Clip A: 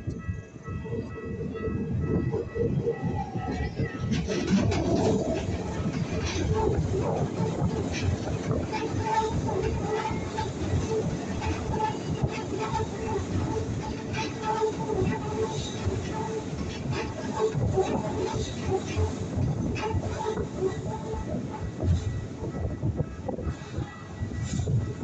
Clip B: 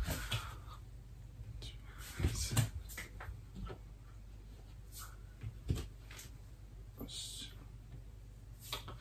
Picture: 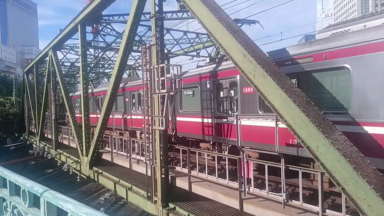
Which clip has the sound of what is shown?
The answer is A